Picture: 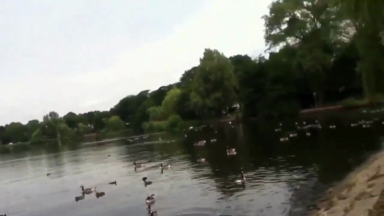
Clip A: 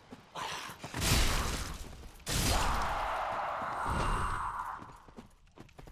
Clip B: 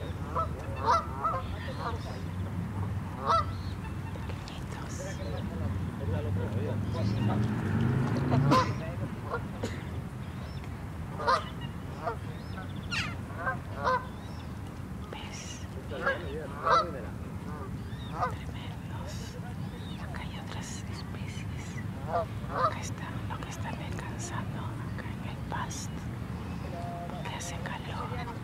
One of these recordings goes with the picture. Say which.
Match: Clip B